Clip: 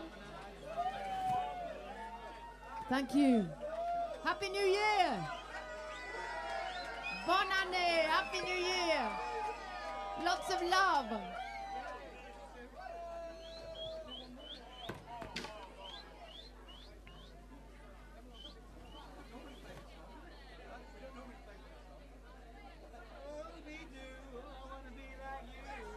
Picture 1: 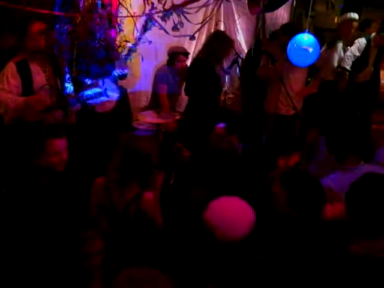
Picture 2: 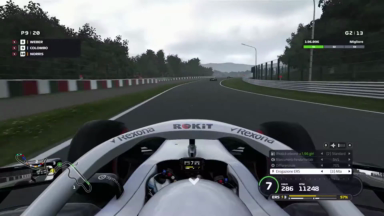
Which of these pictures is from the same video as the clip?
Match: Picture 1